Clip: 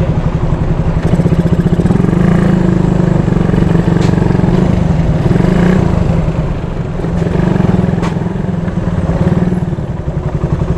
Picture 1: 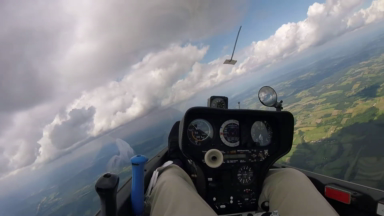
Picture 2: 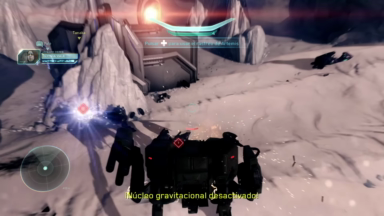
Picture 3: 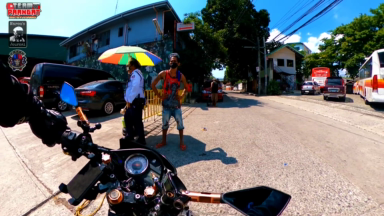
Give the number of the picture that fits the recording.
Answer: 3